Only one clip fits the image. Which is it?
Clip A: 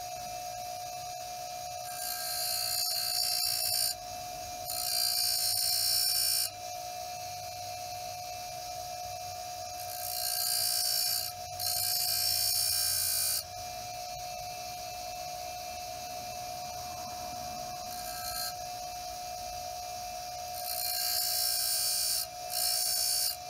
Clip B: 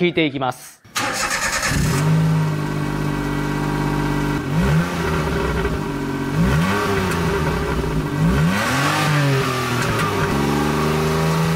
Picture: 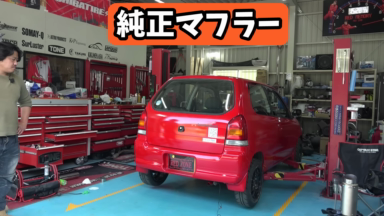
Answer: B